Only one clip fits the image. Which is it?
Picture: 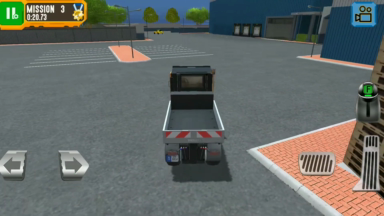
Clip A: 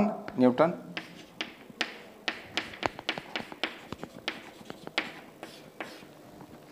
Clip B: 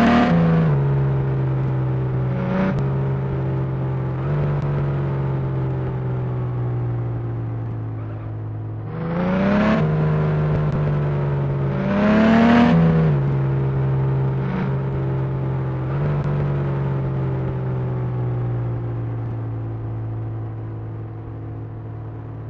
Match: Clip B